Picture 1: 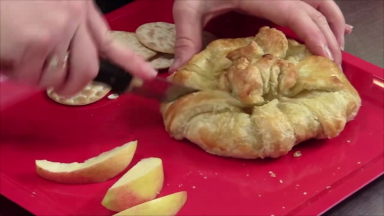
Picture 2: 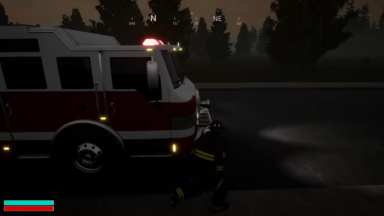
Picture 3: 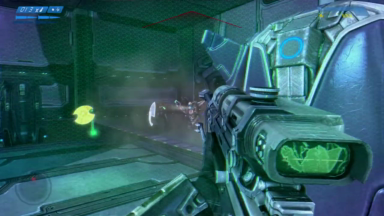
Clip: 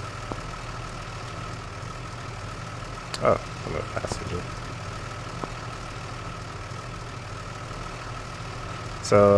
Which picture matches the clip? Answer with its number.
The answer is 2